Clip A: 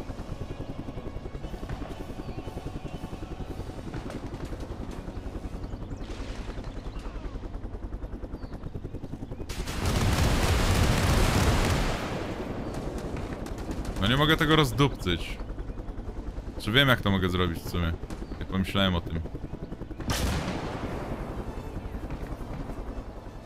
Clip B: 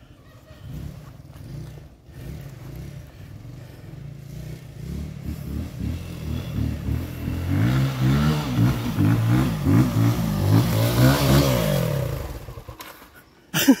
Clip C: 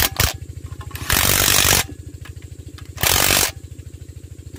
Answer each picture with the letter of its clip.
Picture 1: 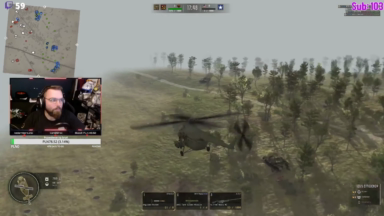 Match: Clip A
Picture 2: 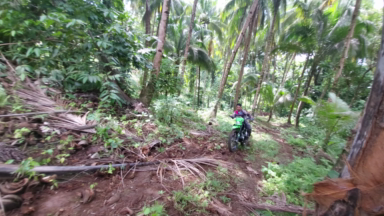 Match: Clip B